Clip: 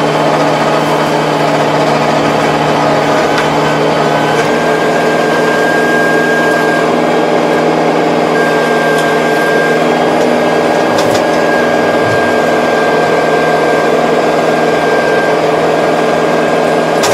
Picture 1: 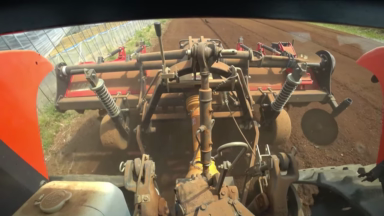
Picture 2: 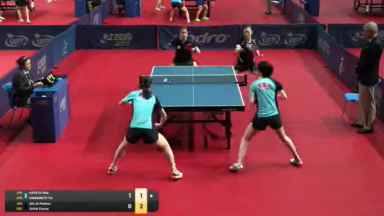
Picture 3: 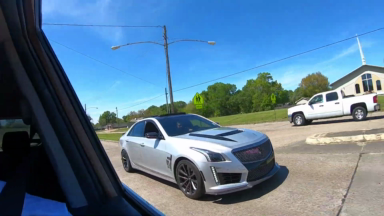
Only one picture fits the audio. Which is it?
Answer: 1